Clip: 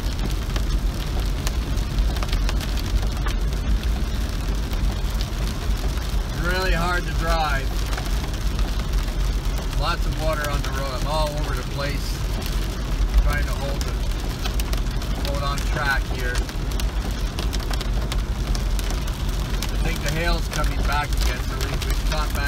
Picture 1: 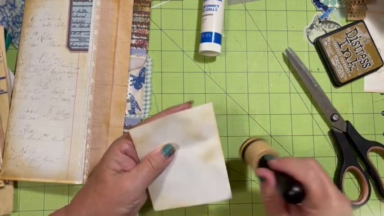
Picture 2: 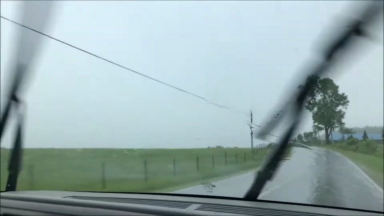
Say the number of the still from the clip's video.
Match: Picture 2